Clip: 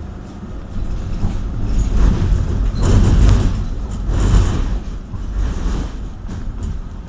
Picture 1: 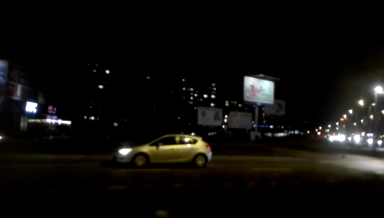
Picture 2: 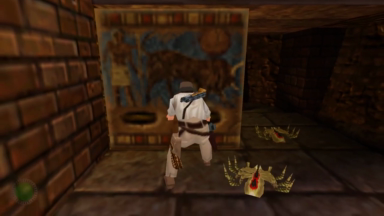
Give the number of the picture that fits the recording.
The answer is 1